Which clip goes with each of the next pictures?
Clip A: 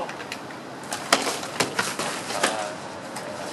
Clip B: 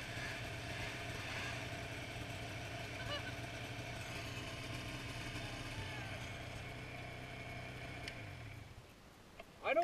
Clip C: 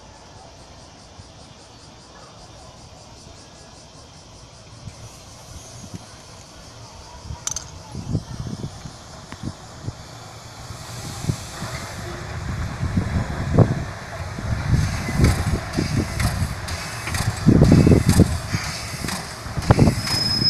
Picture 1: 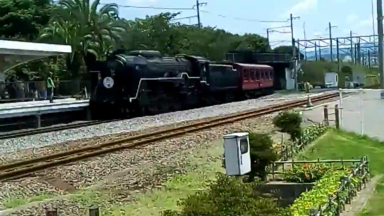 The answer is C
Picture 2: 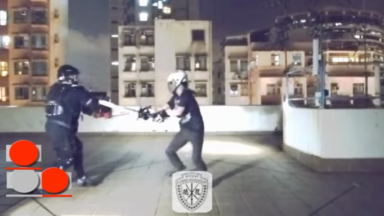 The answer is A